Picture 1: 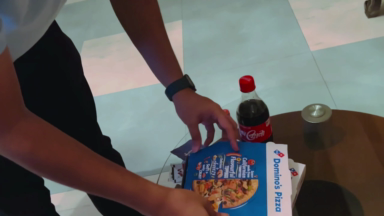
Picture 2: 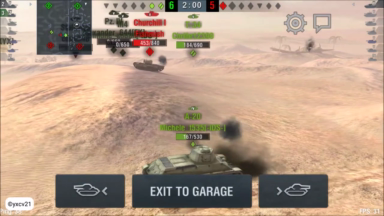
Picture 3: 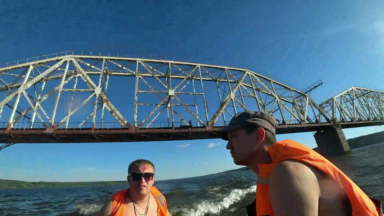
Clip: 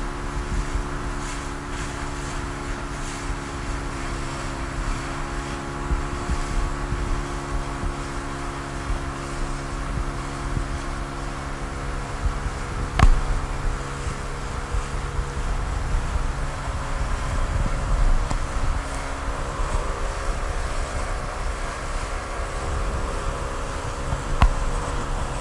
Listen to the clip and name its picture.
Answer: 3